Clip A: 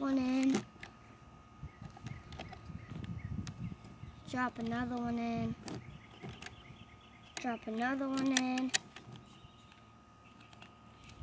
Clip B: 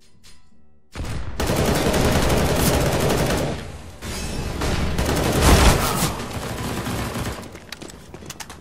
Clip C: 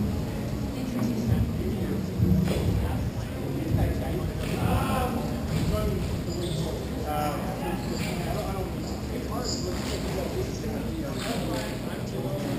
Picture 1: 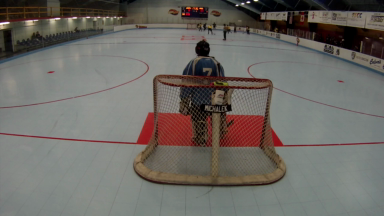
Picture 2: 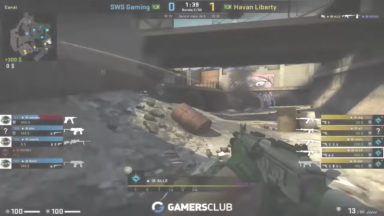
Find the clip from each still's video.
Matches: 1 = C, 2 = B